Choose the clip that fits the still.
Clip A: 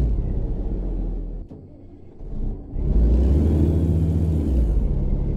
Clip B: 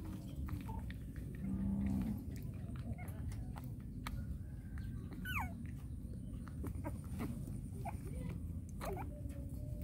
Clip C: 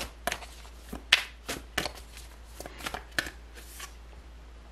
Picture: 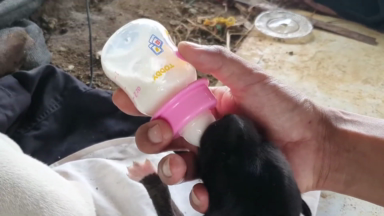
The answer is B